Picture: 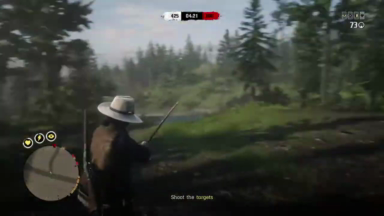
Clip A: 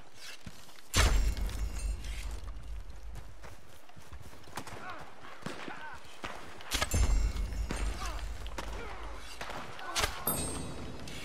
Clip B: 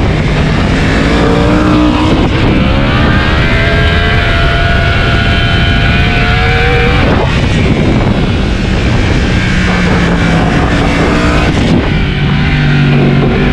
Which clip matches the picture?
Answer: A